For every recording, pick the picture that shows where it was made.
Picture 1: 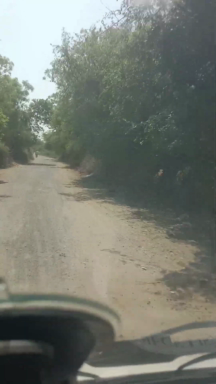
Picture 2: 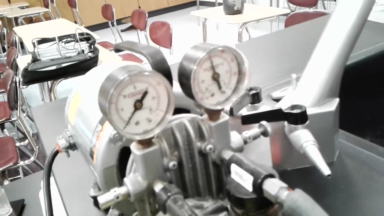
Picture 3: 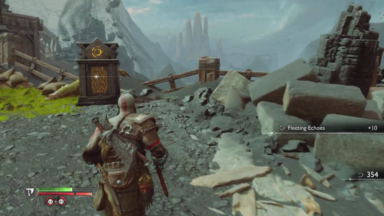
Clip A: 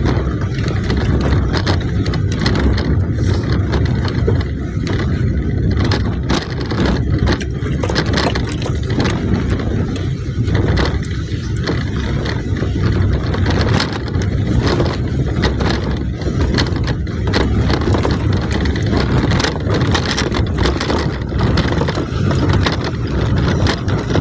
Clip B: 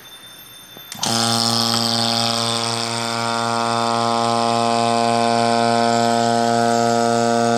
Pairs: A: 1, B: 2